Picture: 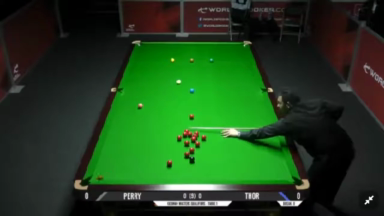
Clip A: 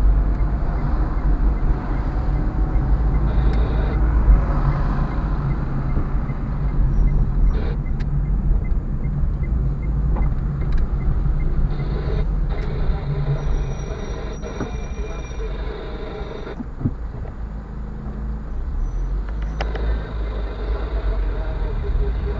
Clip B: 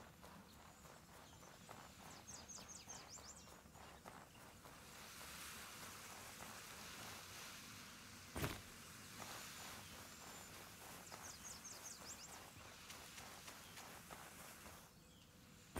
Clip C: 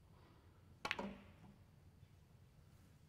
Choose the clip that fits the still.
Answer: C